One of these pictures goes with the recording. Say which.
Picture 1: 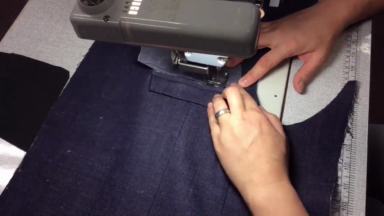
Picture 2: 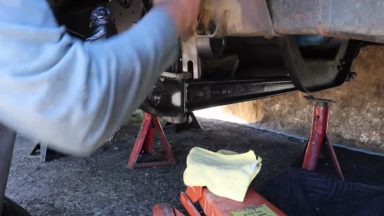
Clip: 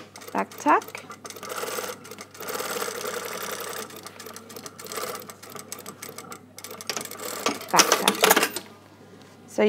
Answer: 1